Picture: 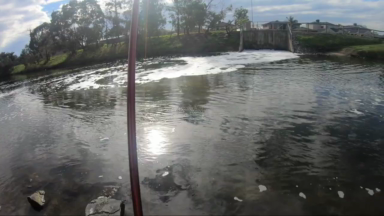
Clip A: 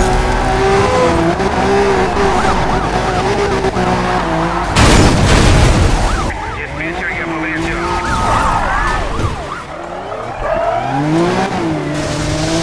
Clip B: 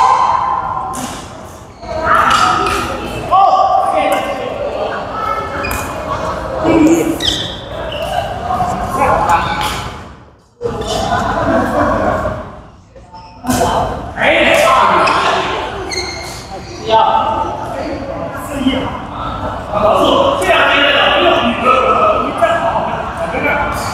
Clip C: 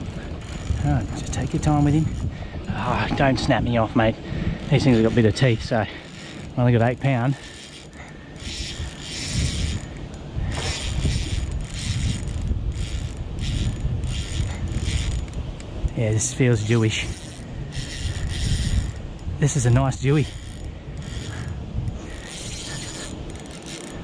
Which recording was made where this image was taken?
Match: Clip C